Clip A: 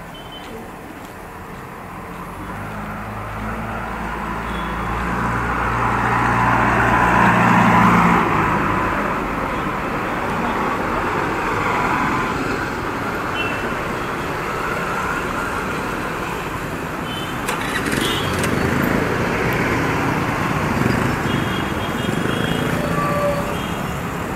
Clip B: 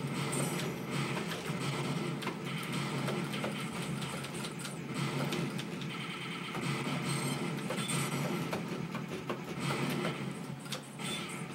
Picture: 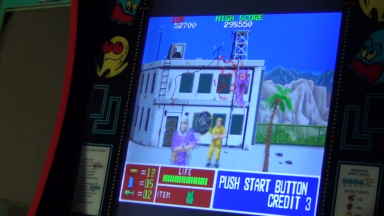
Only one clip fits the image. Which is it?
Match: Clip B